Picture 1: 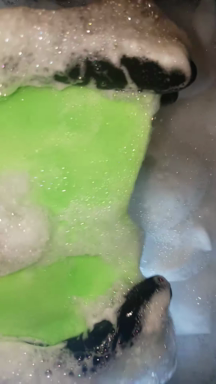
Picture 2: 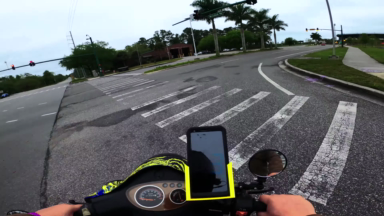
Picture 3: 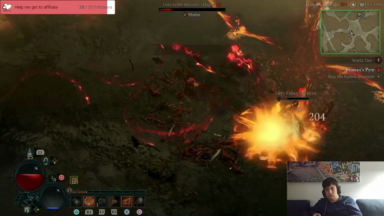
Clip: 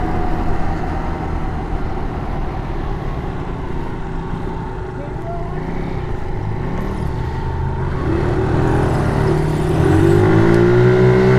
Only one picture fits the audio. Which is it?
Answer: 2